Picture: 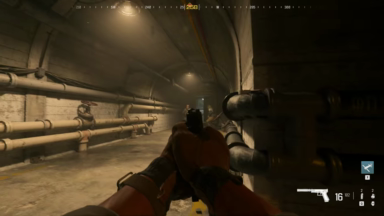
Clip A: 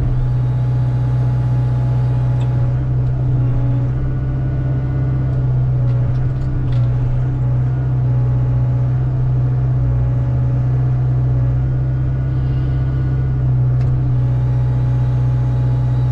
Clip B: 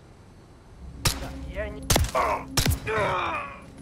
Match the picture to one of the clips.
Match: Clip B